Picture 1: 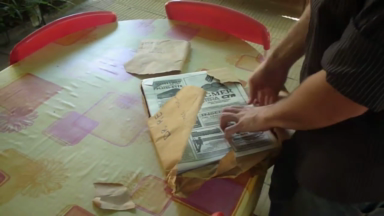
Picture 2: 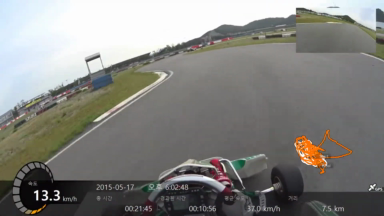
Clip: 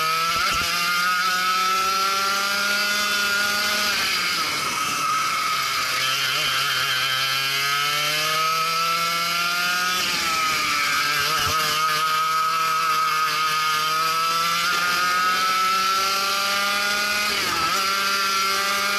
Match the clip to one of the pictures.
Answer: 2